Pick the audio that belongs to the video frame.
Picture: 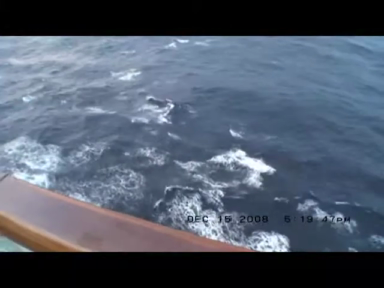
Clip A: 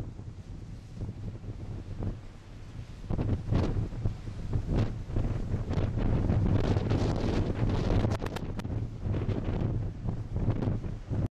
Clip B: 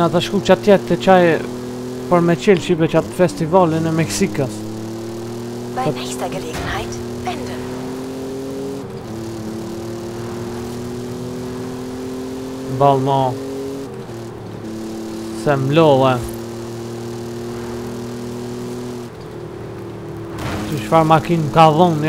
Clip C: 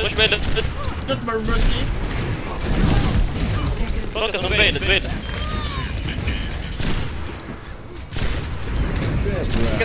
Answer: A